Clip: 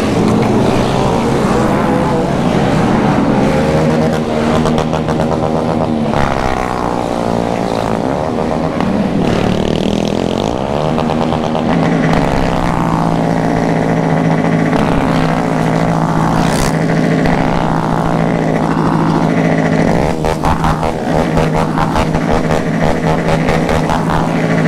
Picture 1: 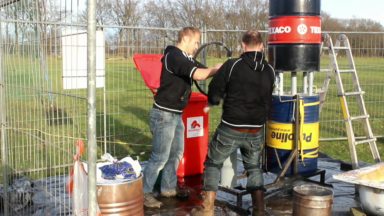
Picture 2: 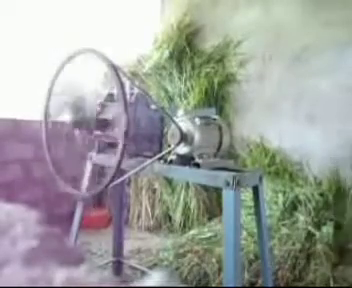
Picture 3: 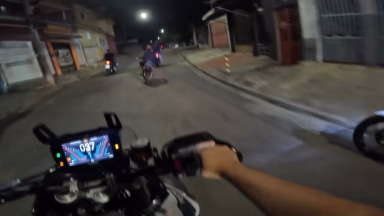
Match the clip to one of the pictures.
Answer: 3